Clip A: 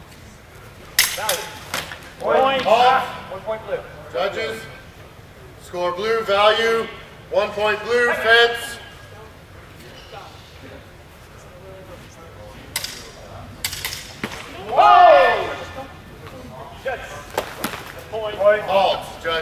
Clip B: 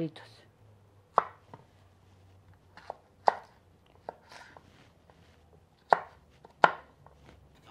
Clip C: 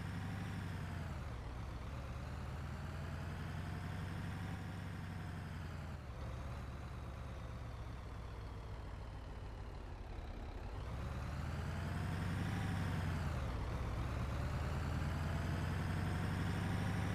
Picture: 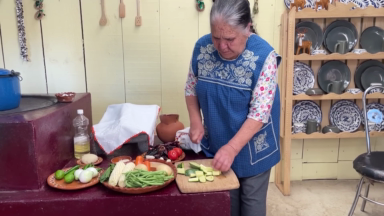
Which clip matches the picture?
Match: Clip B